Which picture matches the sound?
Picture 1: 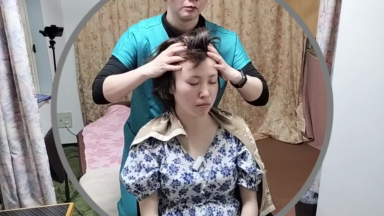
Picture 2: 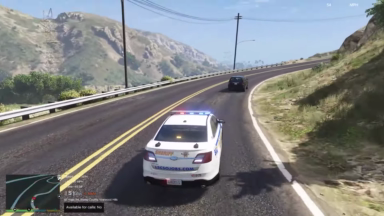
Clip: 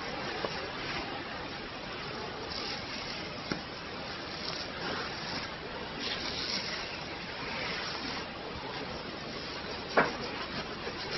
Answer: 1